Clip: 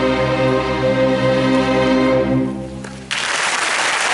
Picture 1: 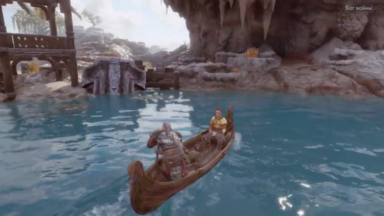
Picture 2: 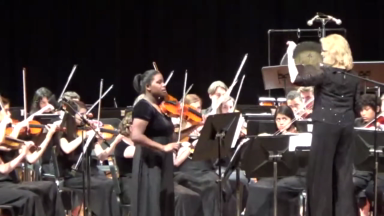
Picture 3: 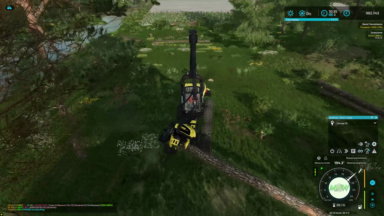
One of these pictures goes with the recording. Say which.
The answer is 2